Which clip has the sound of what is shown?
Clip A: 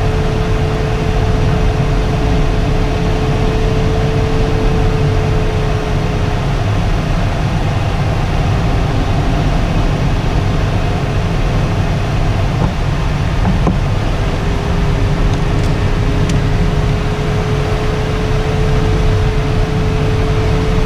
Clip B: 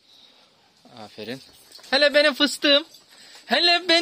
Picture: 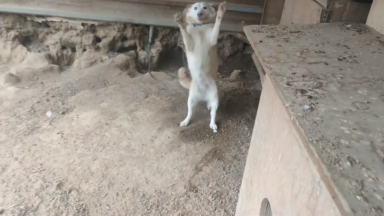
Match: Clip B